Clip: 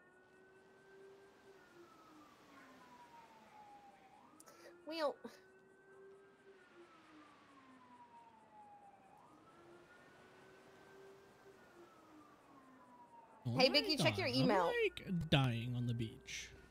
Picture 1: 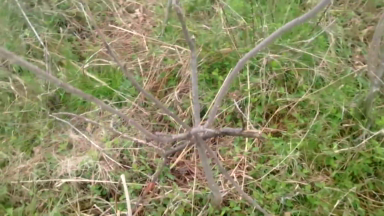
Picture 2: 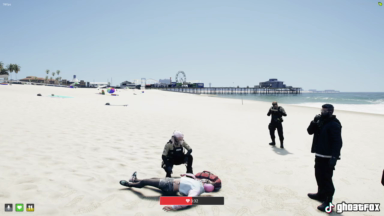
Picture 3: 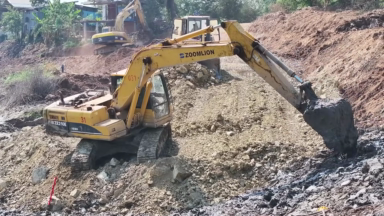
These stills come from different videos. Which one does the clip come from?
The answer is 2